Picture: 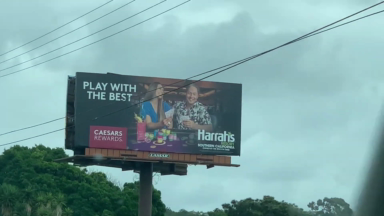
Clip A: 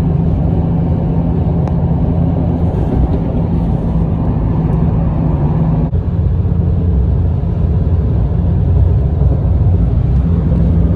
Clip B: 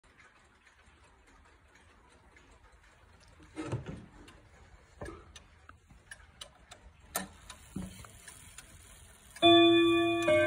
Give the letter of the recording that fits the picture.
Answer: A